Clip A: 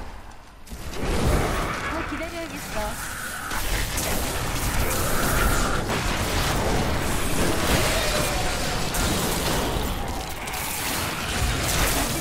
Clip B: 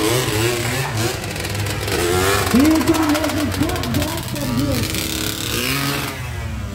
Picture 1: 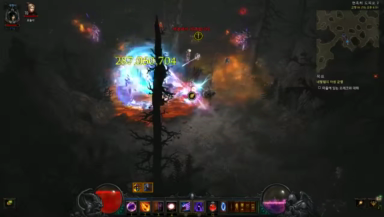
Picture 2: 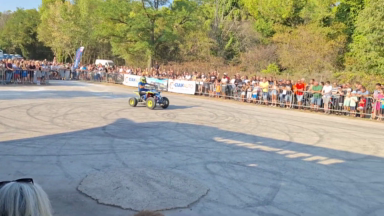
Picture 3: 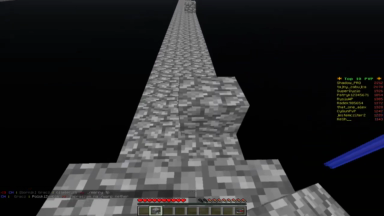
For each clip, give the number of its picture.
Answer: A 1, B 2